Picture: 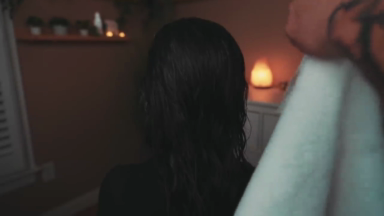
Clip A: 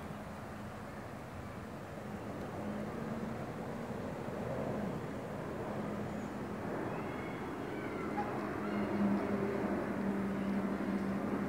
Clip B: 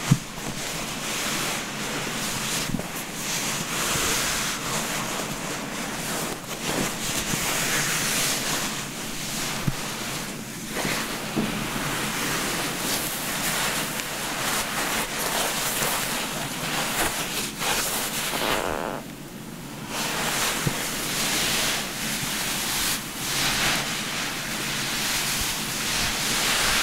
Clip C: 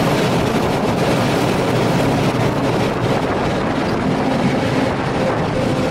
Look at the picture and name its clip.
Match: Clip B